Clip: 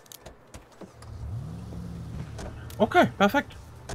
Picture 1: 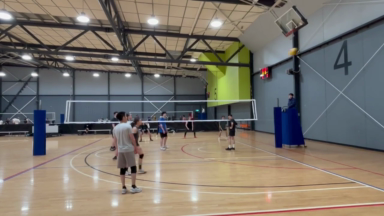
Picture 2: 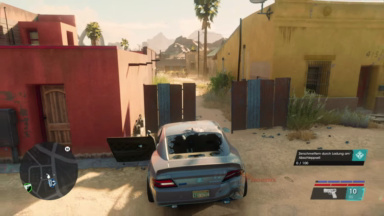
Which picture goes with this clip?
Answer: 2